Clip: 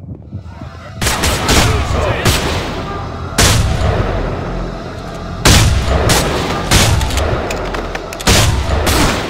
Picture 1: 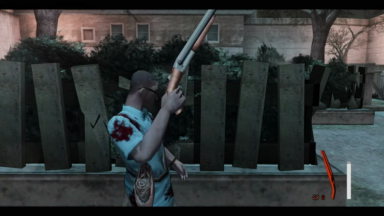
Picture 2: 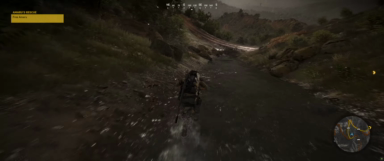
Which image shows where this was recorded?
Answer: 1